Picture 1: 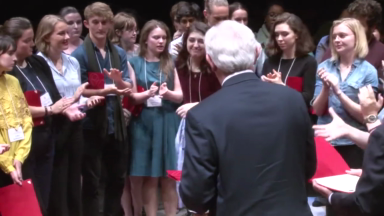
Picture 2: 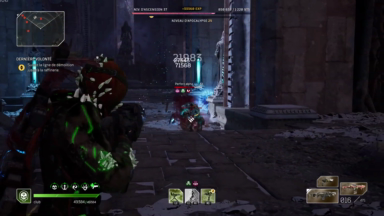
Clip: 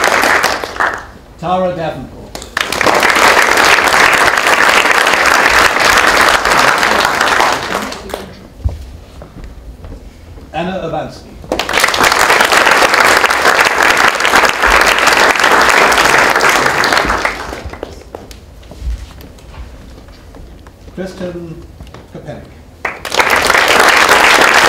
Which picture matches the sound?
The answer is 1